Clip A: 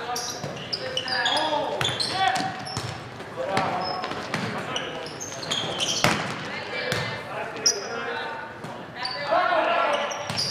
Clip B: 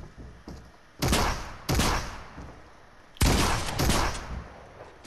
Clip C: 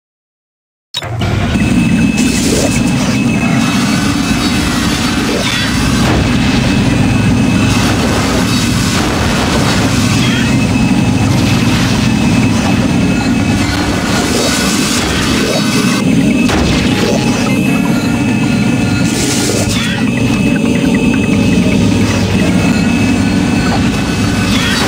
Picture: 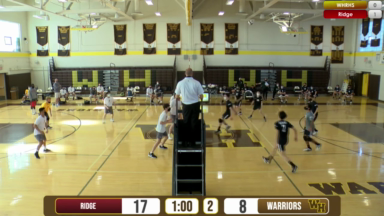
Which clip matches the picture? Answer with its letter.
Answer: A